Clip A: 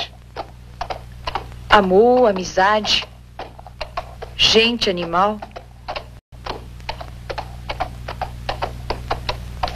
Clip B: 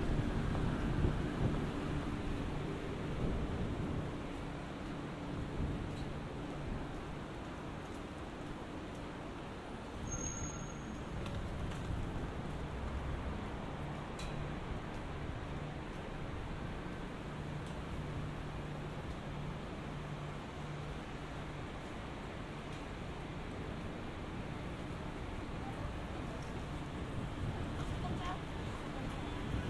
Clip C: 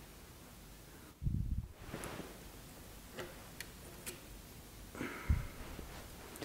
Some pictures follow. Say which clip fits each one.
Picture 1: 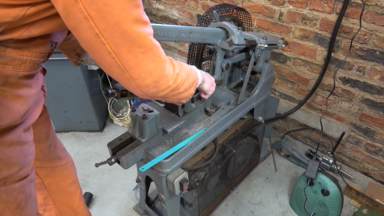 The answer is C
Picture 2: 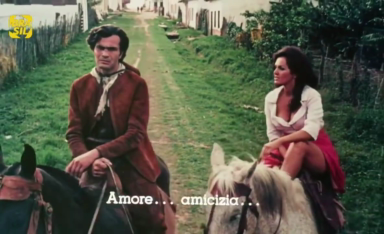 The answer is A